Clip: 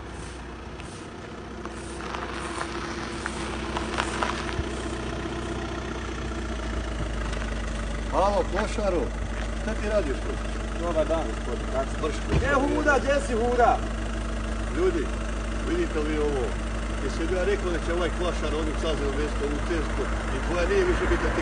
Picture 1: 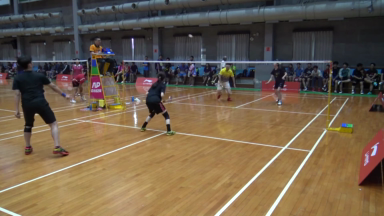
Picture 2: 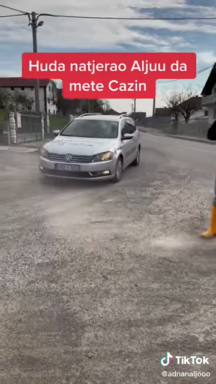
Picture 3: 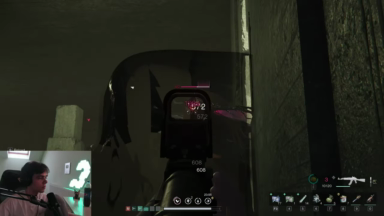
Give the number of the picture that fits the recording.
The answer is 2